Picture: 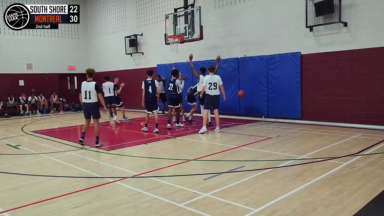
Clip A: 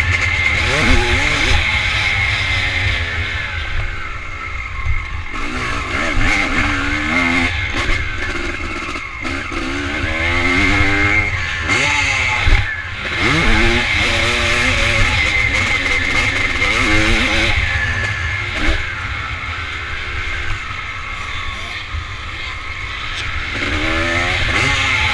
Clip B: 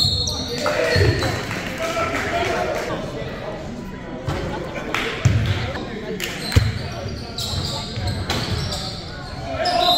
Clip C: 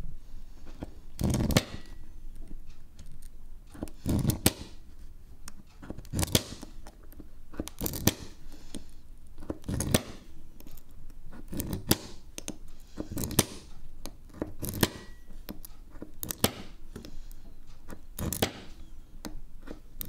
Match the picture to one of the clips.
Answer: B